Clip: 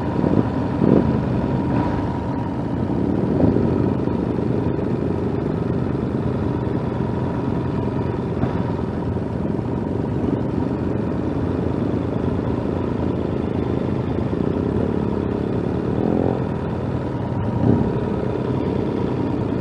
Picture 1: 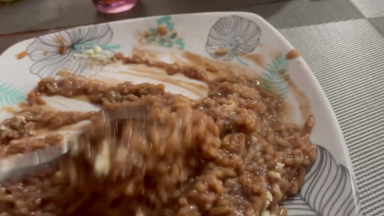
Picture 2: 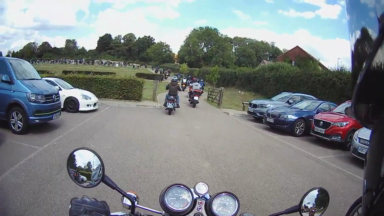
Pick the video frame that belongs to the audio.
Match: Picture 2